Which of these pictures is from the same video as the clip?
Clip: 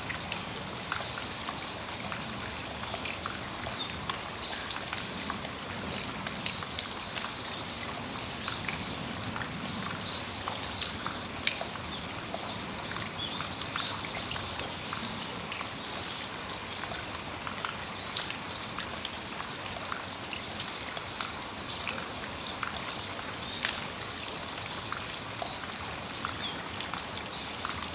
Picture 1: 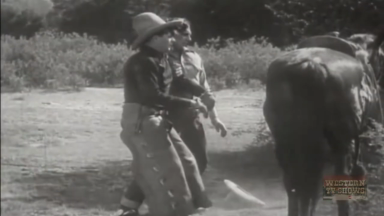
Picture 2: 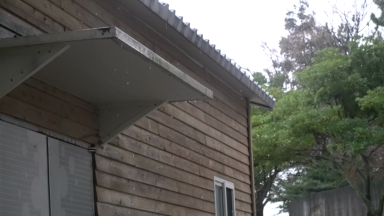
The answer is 2